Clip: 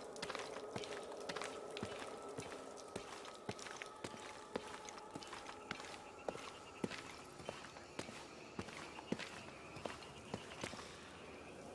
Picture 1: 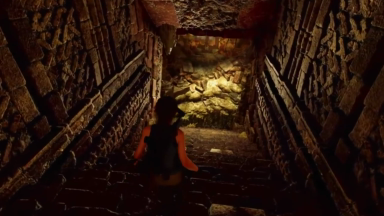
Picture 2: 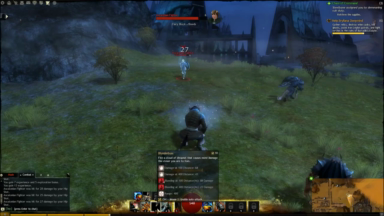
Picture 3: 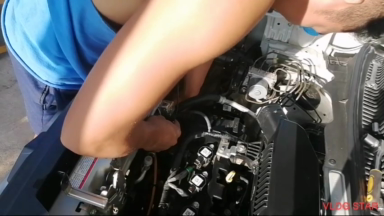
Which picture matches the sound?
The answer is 1